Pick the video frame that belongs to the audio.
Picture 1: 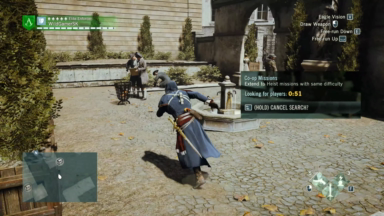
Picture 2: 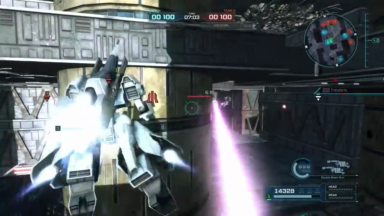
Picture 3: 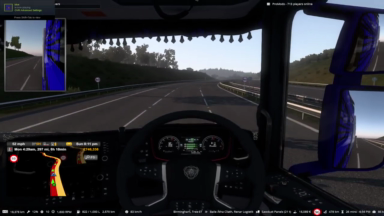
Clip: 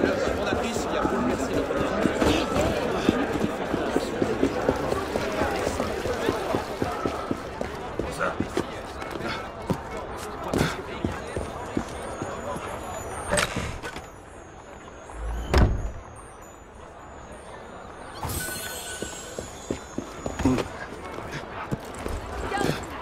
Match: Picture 1